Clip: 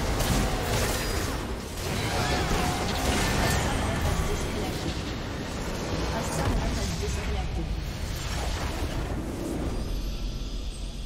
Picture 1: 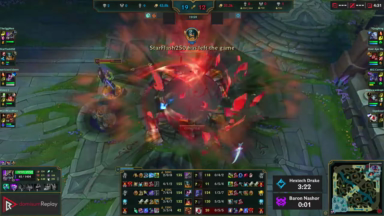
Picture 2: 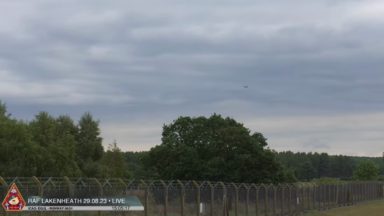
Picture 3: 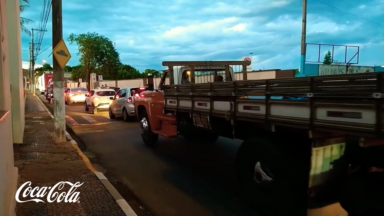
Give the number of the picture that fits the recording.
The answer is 1